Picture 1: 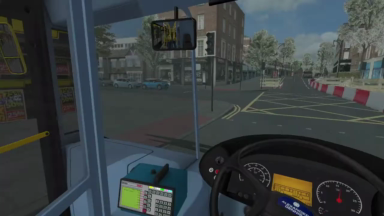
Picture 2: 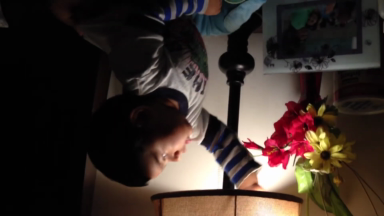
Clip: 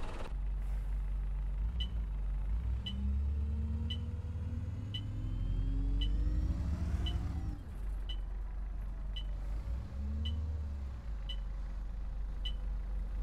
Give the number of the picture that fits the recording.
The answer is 1